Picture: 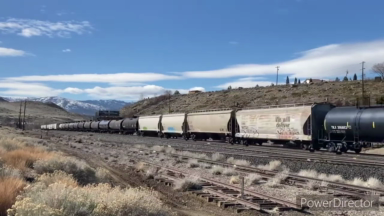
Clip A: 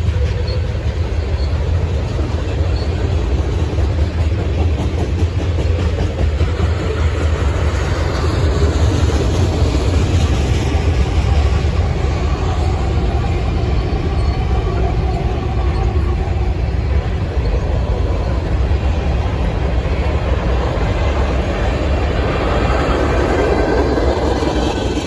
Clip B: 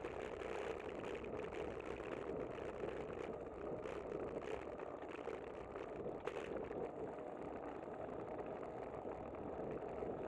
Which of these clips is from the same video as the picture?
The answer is A